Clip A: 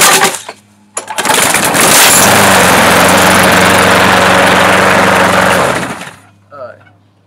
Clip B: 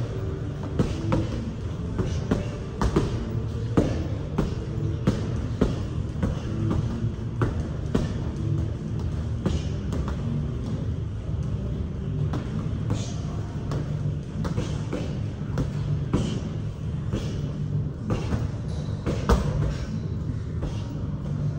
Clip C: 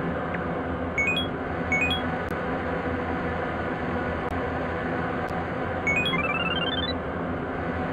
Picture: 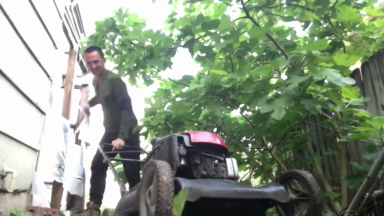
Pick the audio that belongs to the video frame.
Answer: A